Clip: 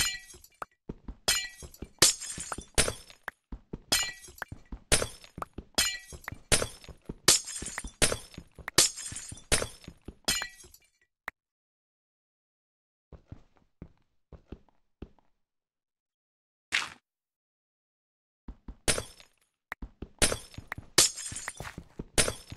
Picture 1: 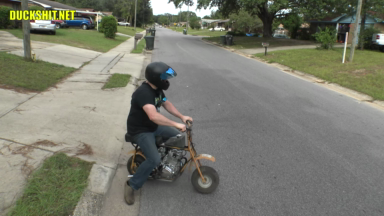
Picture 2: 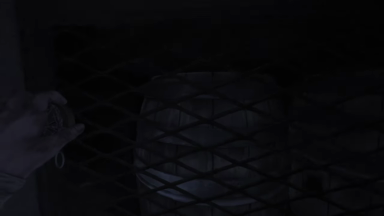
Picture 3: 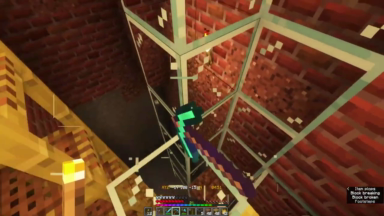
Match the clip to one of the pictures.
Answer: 3